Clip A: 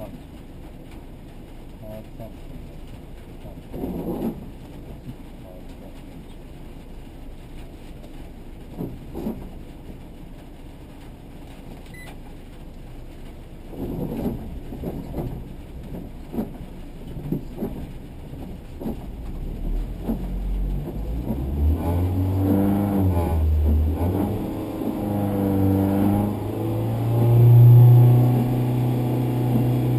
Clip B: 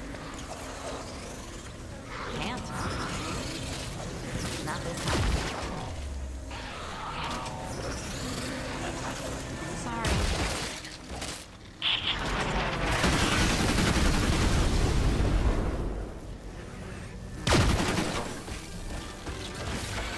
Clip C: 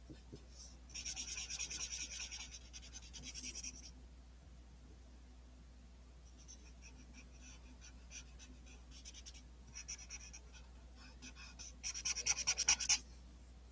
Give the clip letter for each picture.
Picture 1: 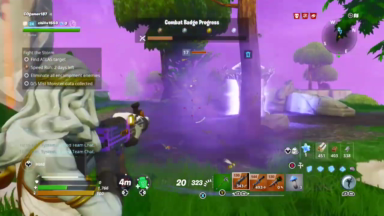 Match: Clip B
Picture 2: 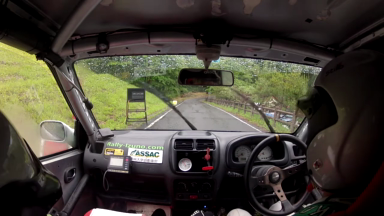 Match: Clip A